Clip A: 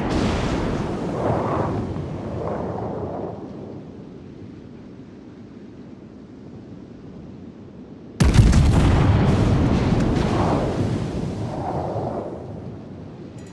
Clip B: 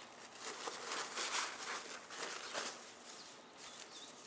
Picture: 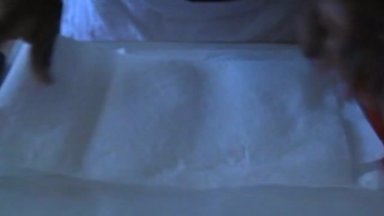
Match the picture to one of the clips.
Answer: B